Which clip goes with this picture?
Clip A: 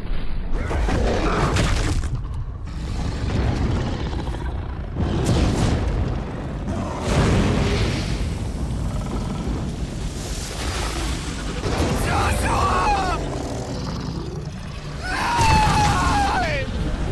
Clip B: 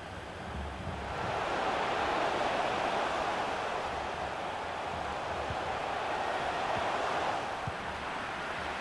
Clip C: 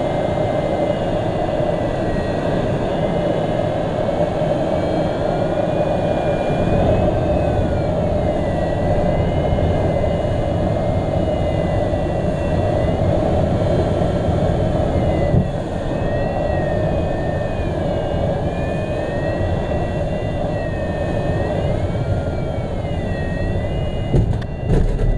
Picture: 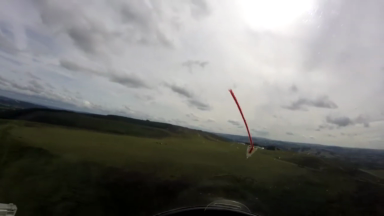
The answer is C